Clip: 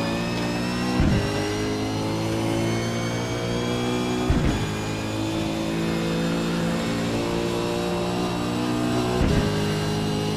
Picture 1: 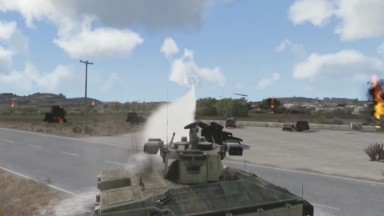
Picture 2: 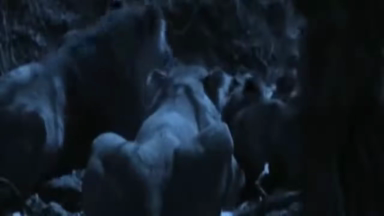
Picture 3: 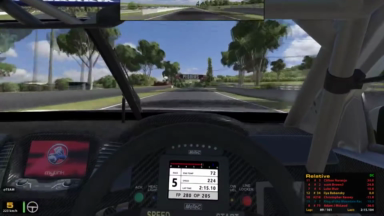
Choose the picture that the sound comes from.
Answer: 3